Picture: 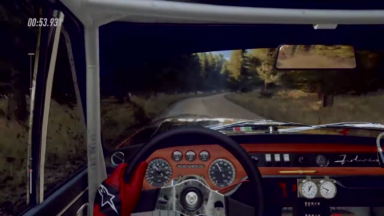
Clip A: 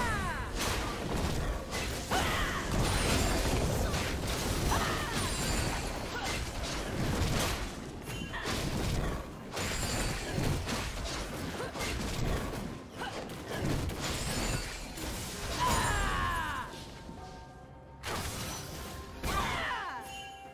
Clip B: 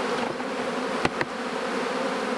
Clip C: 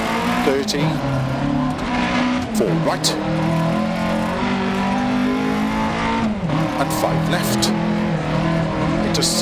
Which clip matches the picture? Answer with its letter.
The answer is C